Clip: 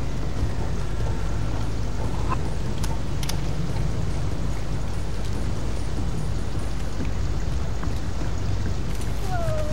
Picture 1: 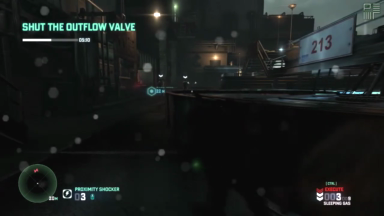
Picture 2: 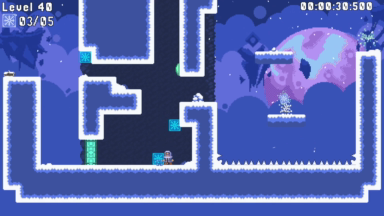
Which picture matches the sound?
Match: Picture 1